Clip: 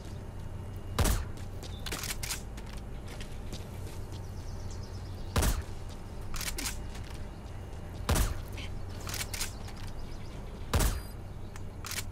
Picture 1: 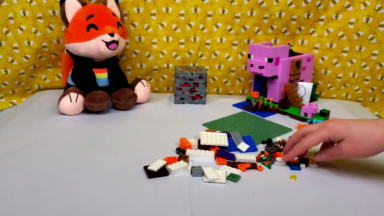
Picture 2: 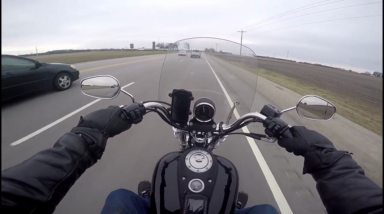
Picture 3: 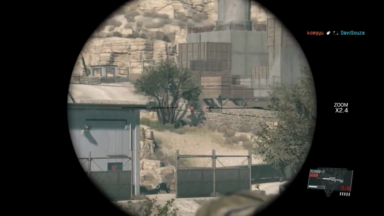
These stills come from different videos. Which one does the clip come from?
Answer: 3